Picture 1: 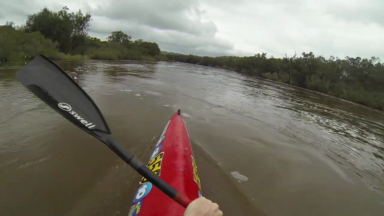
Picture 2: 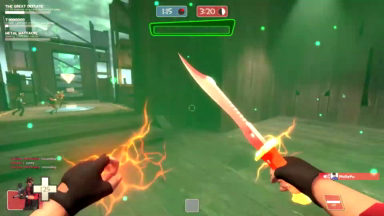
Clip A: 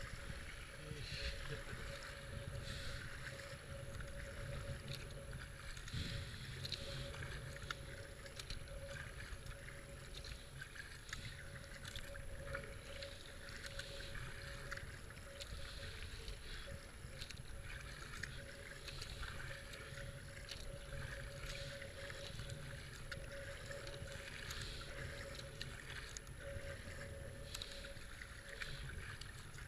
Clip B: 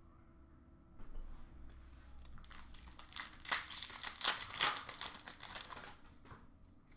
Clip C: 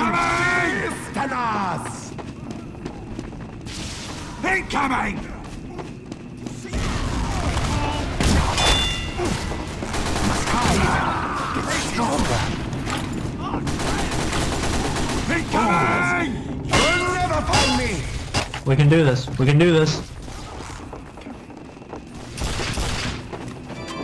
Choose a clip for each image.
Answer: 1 A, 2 C